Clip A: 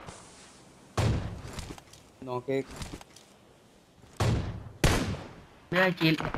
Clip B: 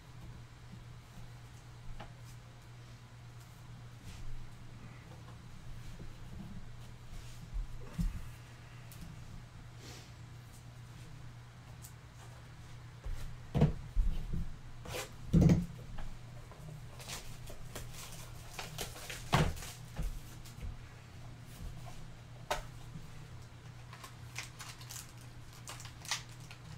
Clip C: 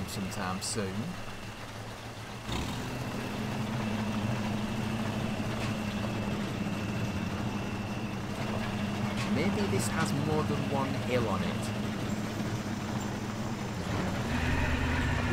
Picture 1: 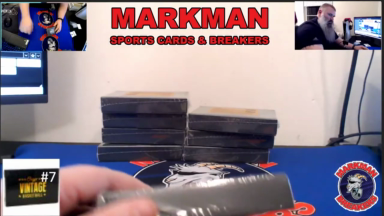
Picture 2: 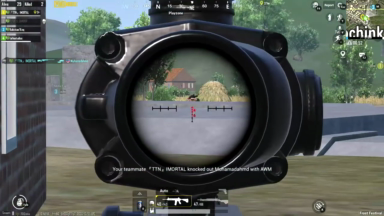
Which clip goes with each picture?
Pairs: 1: B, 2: A